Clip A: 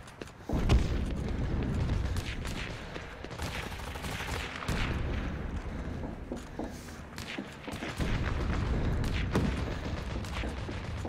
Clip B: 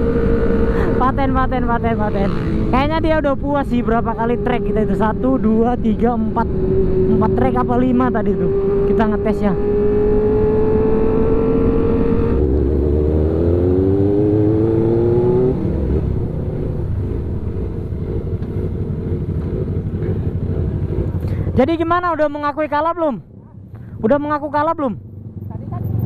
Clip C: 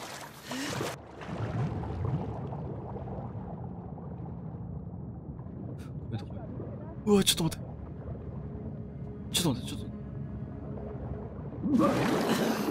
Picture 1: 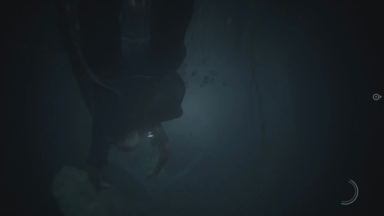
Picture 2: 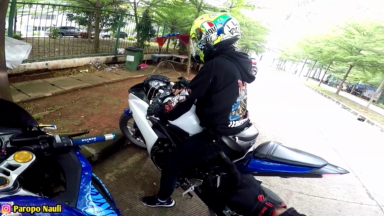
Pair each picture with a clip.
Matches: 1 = C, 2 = B